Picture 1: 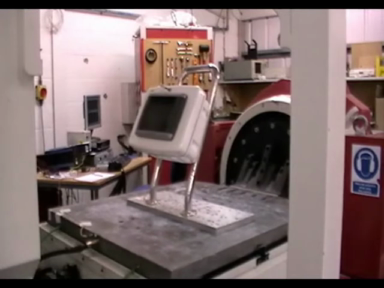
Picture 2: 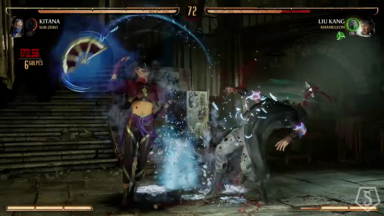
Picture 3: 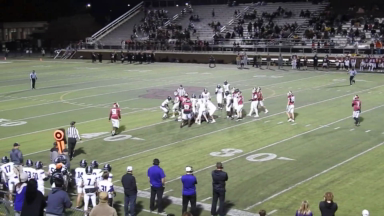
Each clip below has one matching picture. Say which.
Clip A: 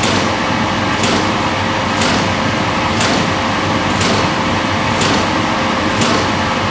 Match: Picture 1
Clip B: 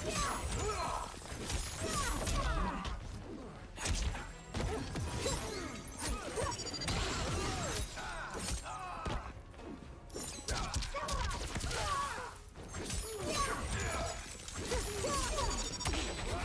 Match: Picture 2